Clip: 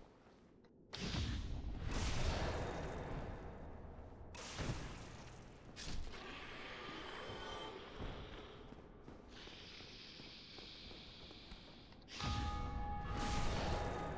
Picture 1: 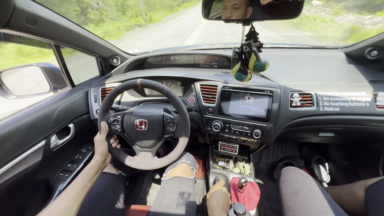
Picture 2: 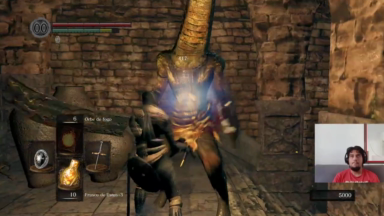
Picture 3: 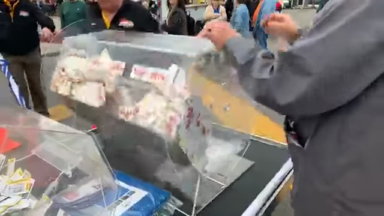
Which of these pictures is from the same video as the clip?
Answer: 2